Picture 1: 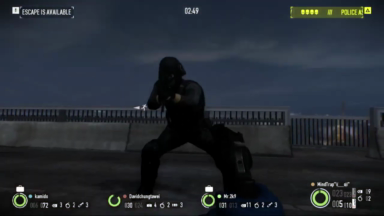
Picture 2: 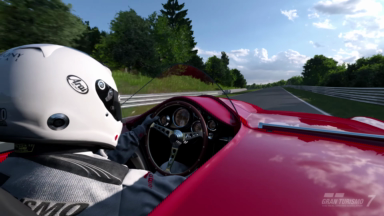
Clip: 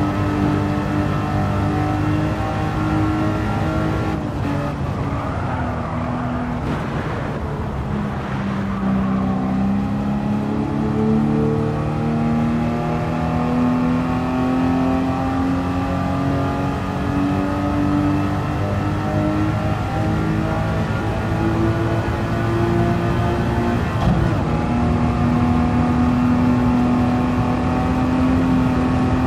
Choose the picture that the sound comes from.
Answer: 2